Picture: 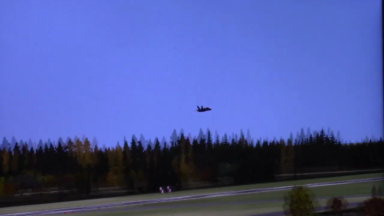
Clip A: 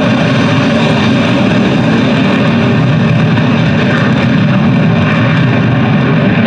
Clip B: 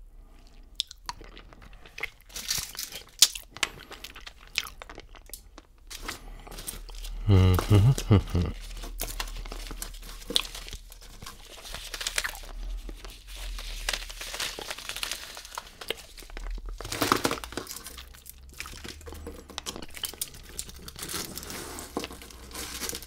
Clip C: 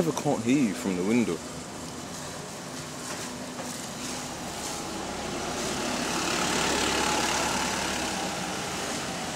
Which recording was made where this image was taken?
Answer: A